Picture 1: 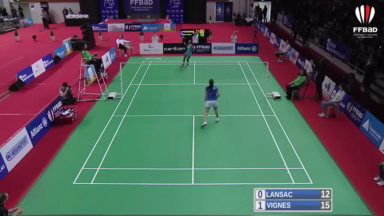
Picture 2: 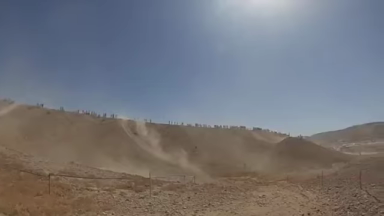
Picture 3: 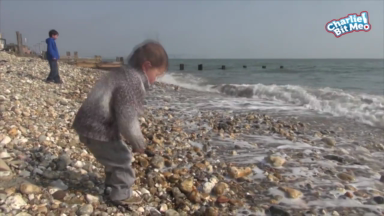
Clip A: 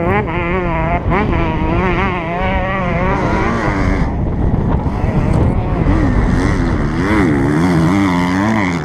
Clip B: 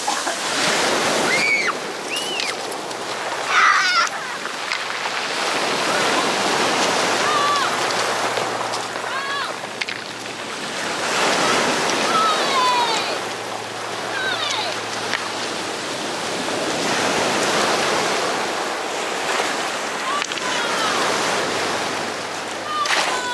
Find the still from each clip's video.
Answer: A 2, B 3